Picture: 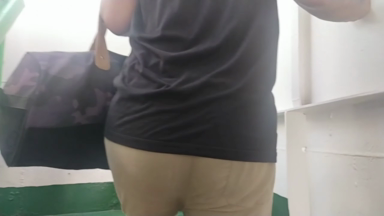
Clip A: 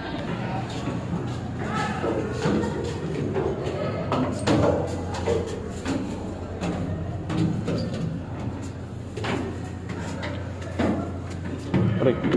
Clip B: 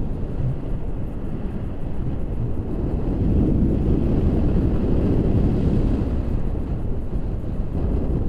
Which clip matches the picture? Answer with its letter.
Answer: A